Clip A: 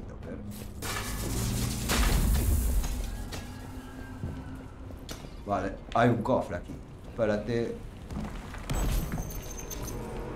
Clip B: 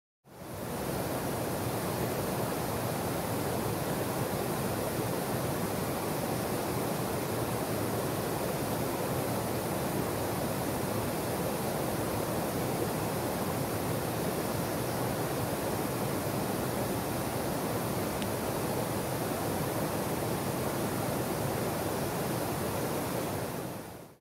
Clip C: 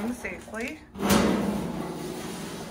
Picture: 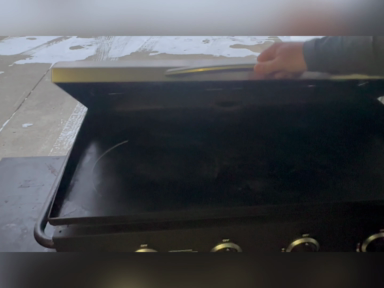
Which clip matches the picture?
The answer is C